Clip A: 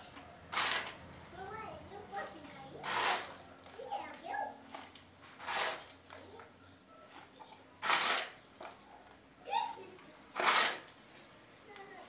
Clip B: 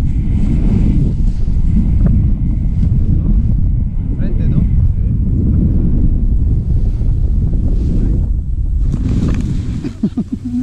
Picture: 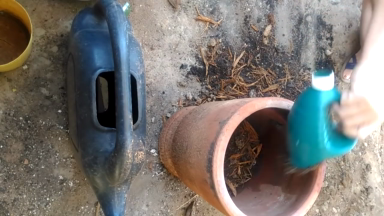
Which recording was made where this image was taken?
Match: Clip A